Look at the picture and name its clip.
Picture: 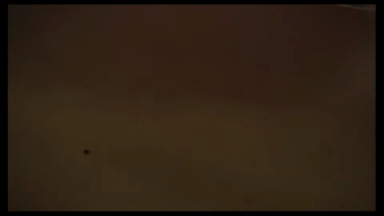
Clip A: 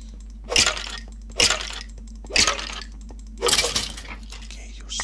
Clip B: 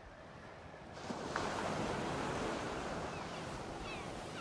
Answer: B